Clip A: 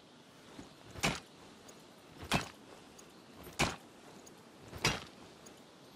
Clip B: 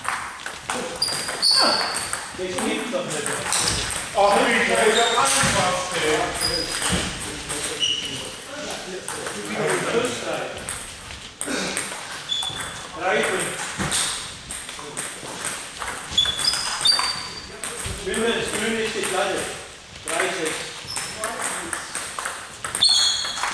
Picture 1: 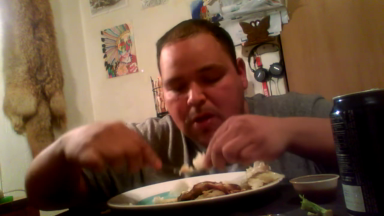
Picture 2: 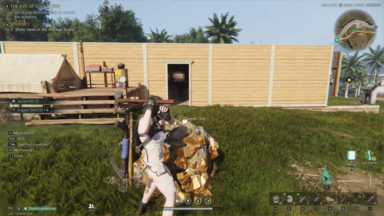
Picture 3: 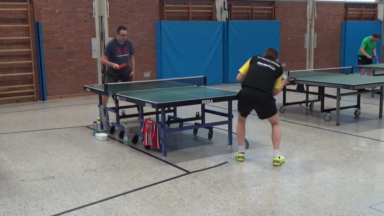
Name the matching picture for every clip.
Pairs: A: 2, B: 3